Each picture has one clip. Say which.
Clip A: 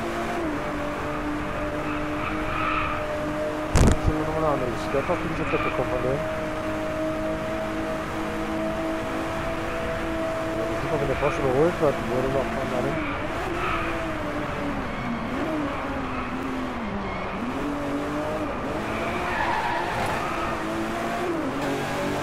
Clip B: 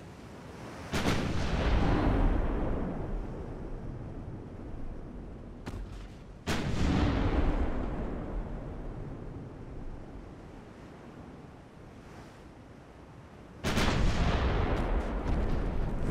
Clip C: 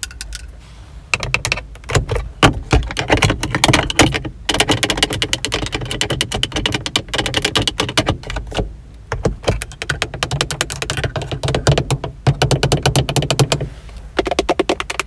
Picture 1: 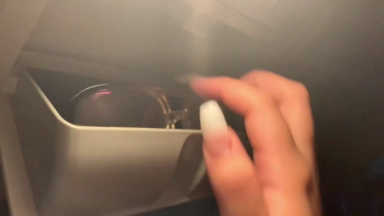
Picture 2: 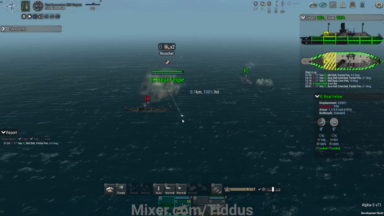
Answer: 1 C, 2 B